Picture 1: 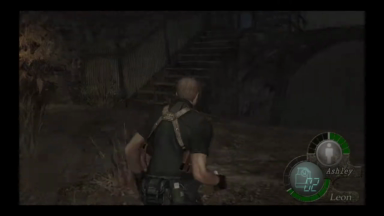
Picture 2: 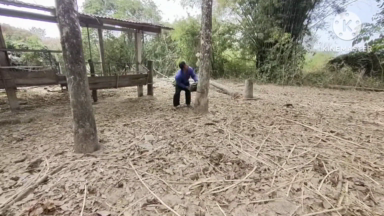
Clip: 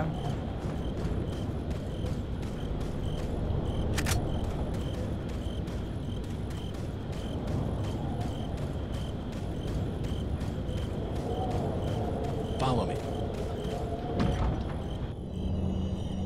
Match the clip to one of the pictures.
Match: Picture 1